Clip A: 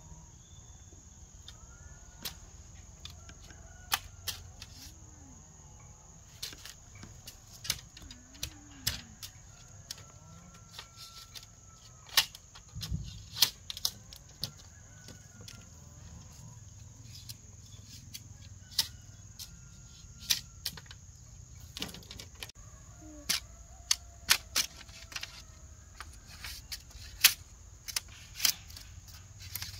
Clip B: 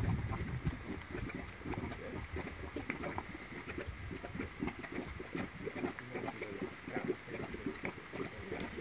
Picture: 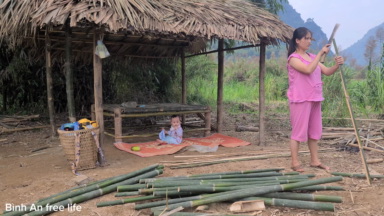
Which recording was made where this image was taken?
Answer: A